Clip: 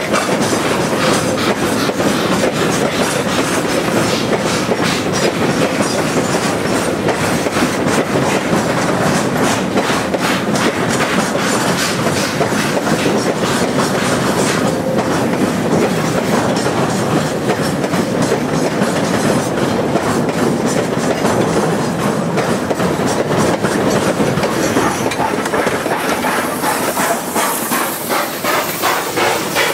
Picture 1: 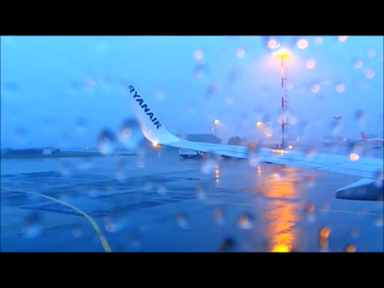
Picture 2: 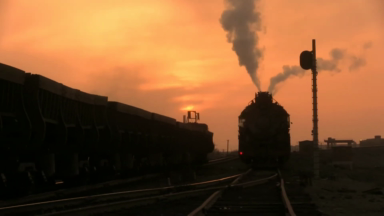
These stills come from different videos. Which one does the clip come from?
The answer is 2